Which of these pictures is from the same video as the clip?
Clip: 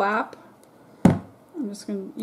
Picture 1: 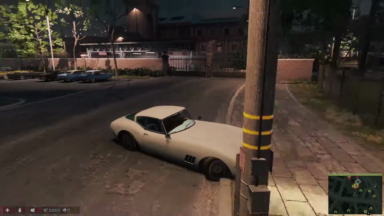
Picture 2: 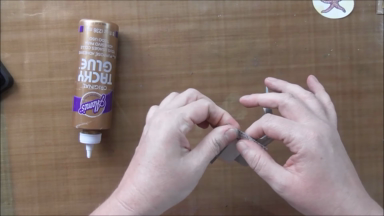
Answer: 2